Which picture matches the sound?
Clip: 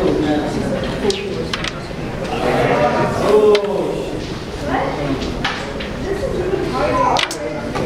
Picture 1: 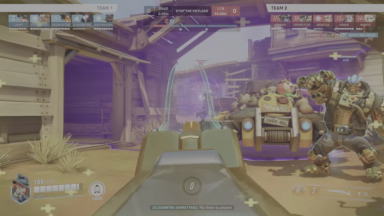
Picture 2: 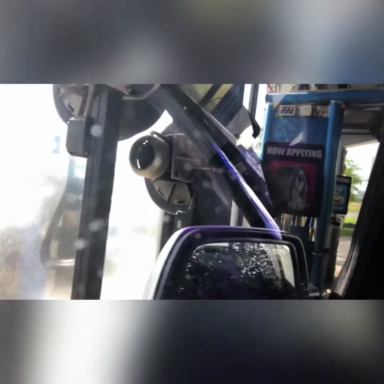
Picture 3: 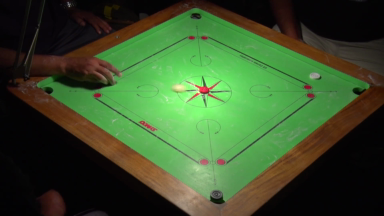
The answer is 3